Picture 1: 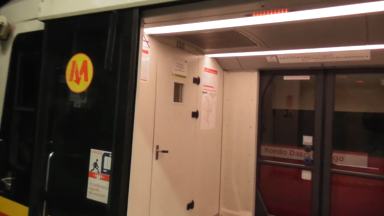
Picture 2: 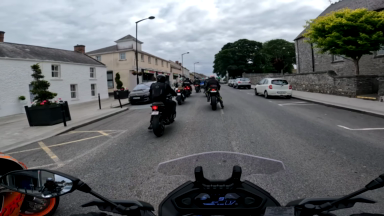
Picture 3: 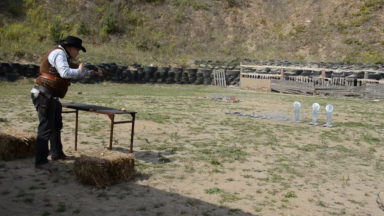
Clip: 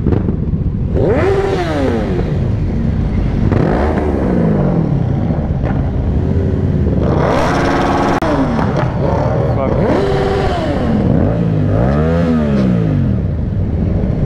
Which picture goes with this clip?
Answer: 2